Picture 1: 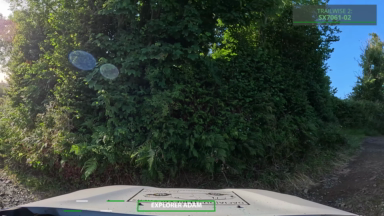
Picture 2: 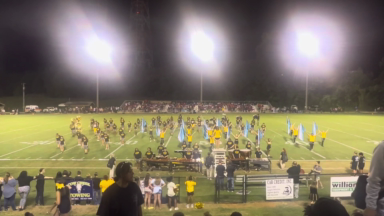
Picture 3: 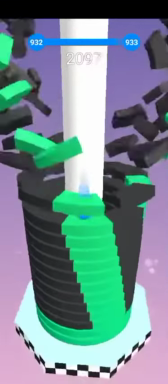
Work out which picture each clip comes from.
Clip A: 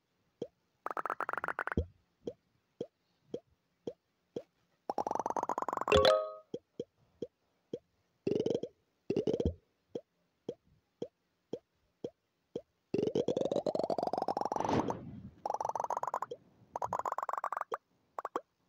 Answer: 3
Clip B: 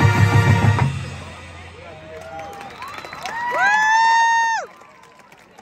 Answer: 2